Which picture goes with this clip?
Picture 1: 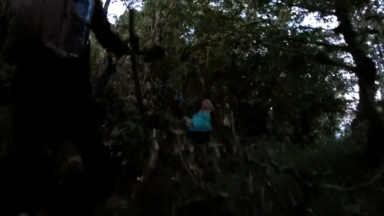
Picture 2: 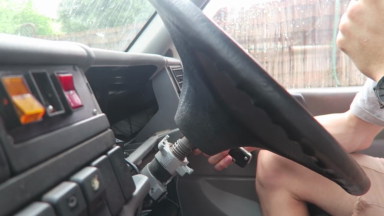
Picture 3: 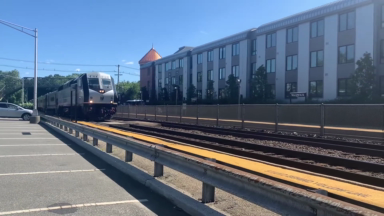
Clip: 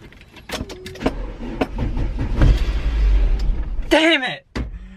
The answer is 2